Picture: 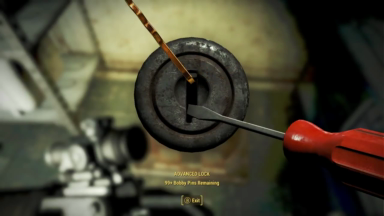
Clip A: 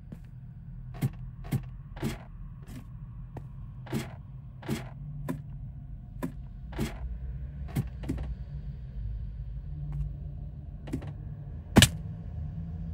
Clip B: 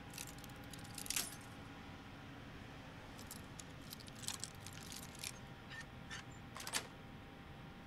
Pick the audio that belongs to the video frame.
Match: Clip B